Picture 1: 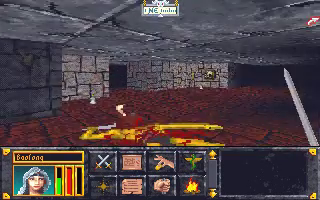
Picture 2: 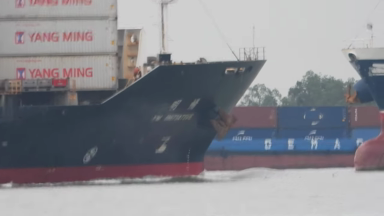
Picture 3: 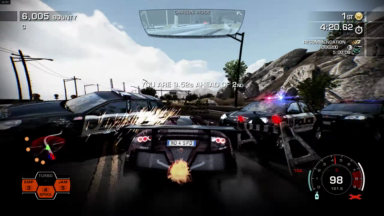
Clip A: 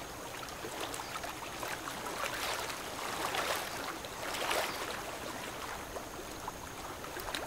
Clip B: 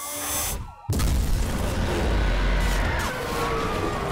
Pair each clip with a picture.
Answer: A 2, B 3